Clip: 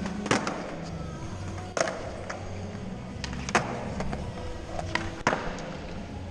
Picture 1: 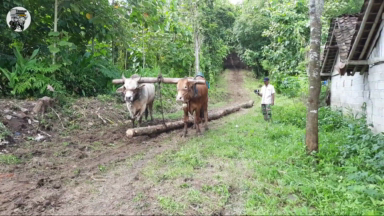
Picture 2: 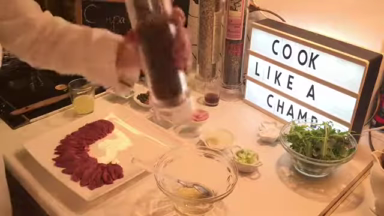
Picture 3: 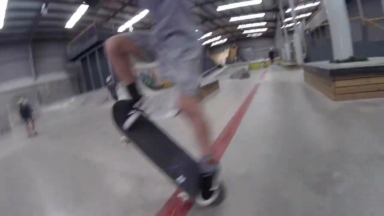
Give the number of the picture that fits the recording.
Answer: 3